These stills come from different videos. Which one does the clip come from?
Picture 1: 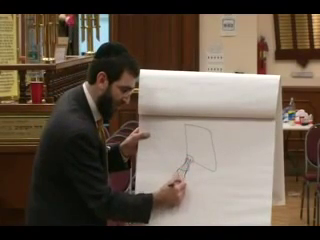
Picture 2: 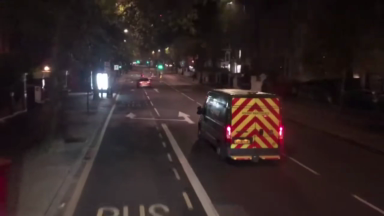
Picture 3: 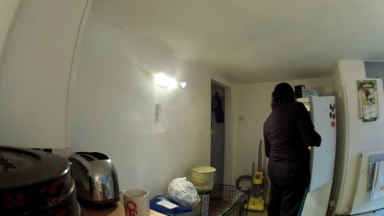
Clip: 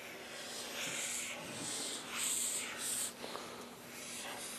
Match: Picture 1